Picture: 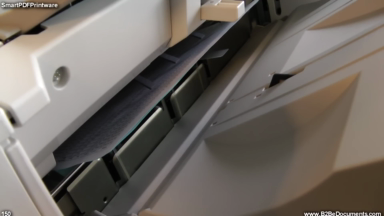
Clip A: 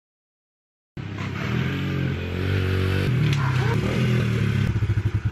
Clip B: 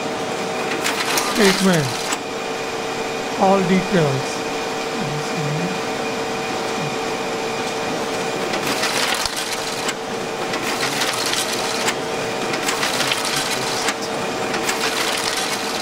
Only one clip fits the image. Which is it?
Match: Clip B